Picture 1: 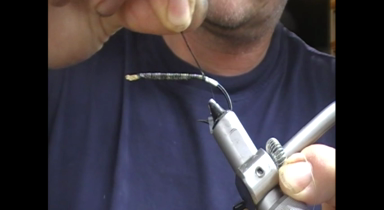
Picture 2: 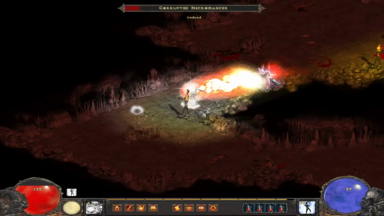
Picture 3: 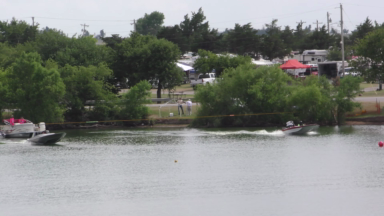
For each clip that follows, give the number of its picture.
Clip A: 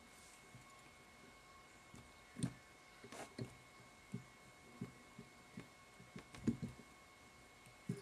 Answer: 1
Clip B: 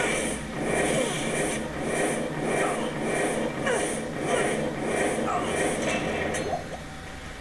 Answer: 2